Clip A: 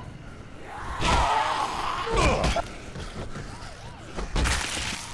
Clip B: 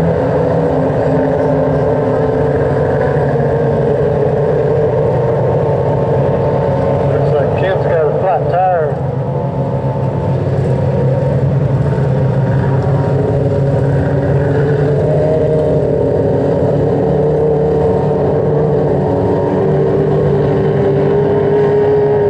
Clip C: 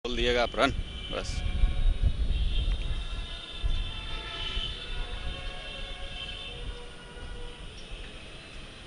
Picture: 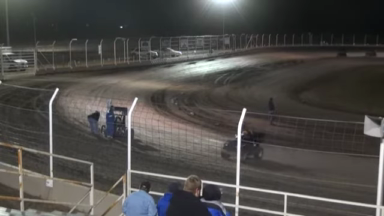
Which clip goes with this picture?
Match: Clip B